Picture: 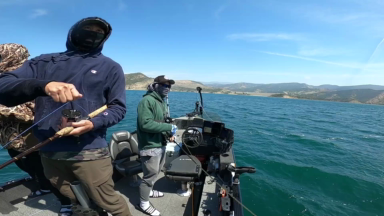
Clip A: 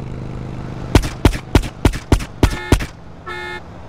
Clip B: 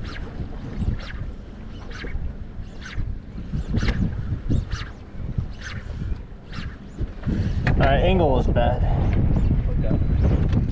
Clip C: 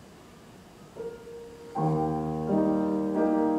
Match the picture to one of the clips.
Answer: B